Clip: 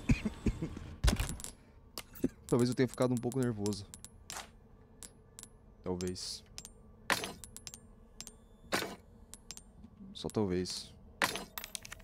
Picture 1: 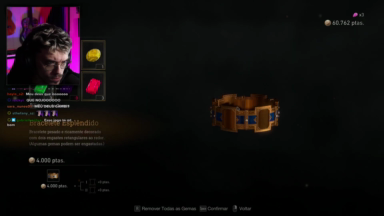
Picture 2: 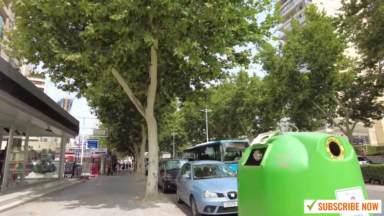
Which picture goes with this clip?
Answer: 1